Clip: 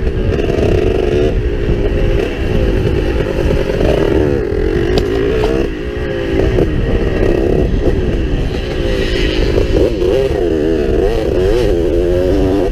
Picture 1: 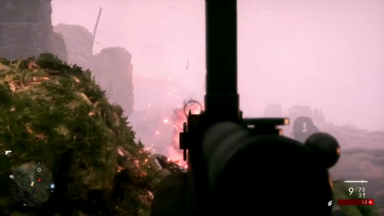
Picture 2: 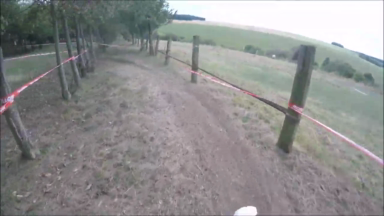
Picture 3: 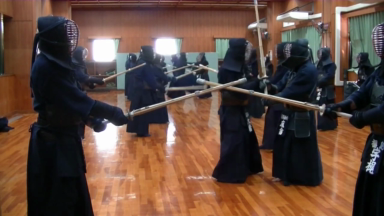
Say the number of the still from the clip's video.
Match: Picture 2